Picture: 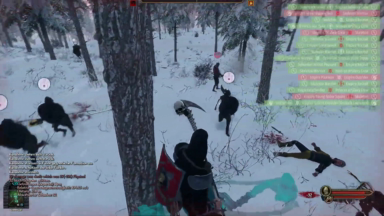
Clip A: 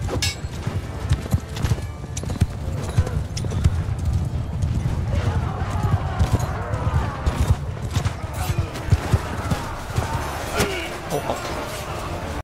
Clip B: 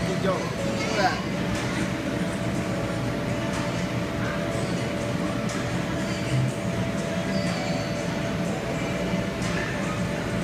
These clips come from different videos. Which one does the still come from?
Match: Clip A